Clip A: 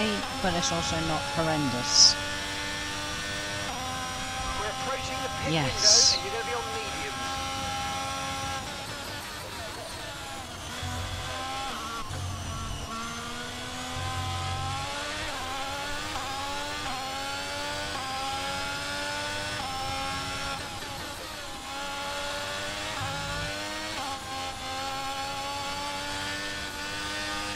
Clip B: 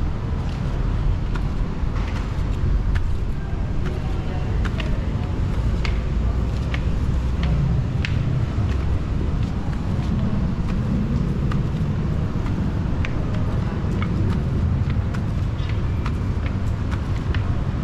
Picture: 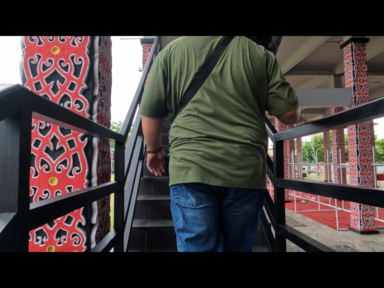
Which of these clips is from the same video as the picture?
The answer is B